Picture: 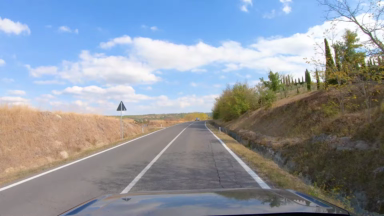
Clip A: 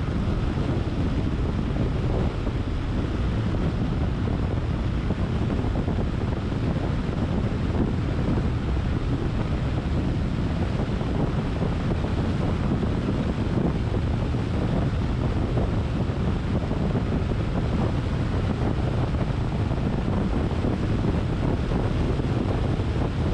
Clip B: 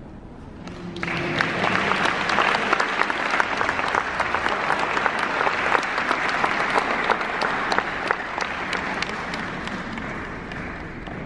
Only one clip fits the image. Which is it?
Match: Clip A